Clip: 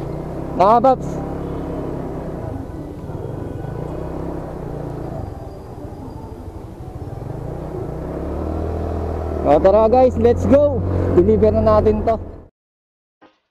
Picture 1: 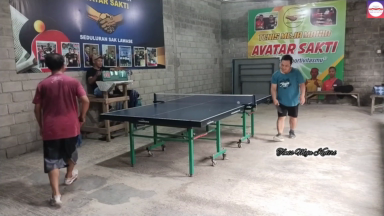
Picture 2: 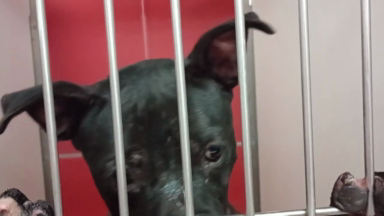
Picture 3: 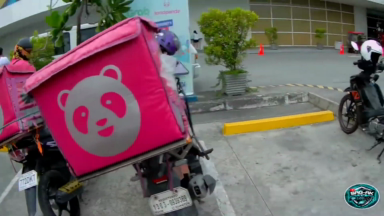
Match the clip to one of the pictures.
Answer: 3